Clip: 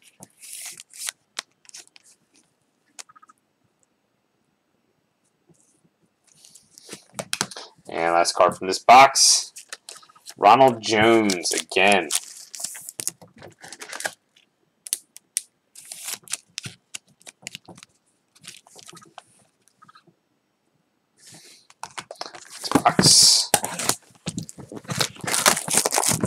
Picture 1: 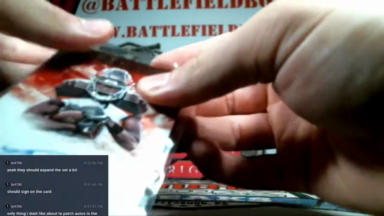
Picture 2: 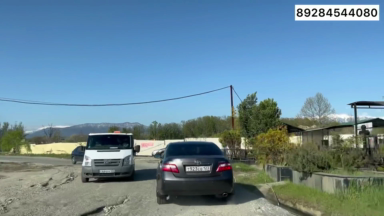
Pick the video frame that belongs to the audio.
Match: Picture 1